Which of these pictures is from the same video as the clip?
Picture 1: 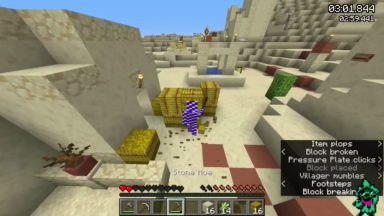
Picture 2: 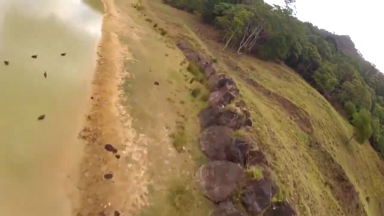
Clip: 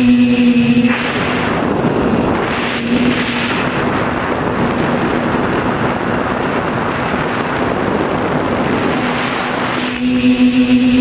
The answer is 2